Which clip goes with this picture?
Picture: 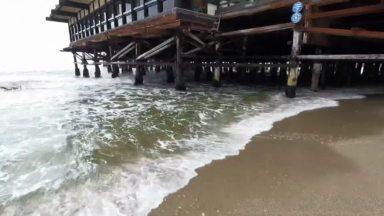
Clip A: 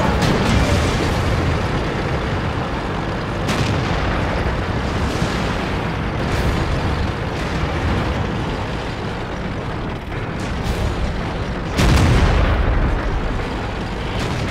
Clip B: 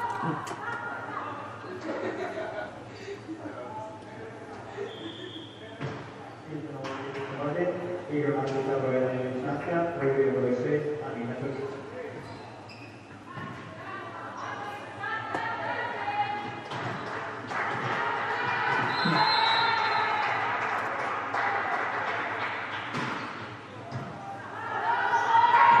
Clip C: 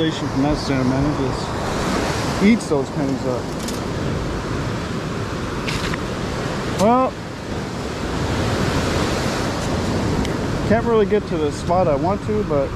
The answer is C